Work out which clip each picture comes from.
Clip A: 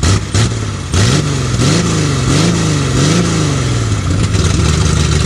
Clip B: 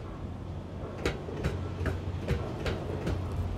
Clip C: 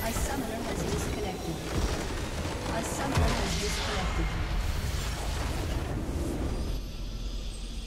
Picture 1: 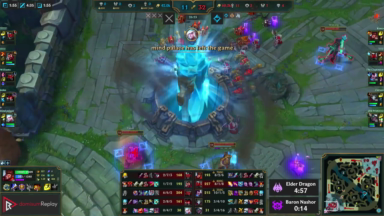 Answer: C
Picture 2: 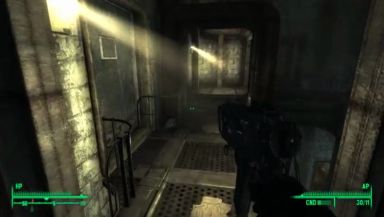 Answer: B